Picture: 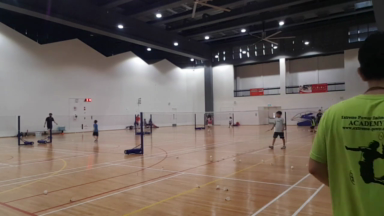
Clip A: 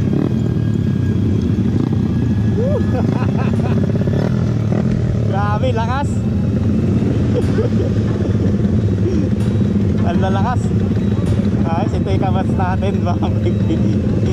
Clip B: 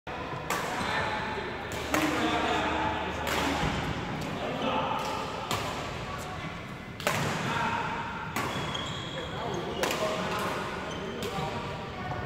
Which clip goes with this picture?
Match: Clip B